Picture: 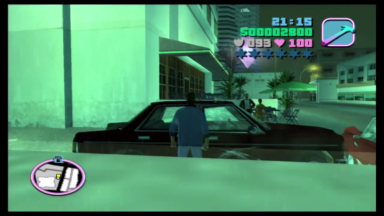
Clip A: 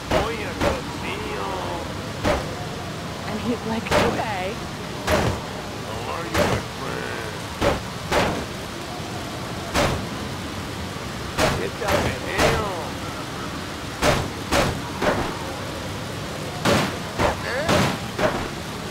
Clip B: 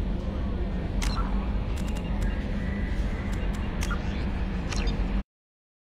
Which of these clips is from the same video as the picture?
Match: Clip A